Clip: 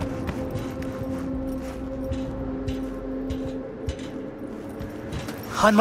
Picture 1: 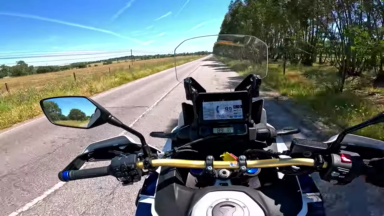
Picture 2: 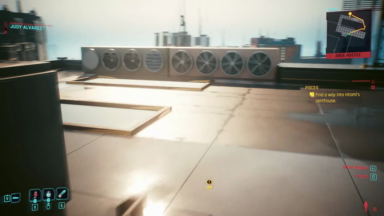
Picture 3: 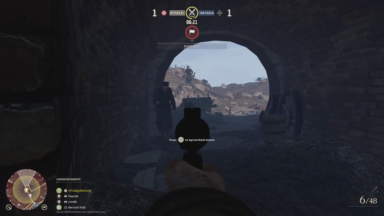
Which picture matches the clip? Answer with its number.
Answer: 2